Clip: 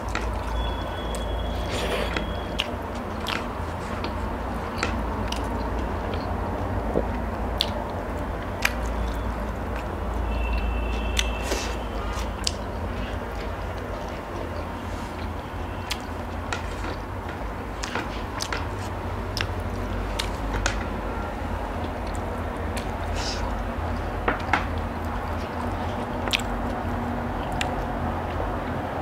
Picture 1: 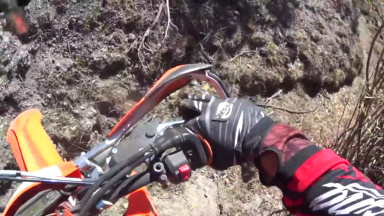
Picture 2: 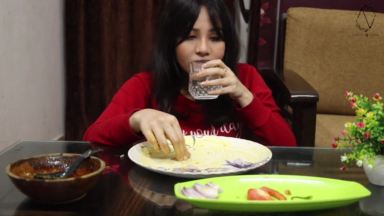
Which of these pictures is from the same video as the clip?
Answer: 2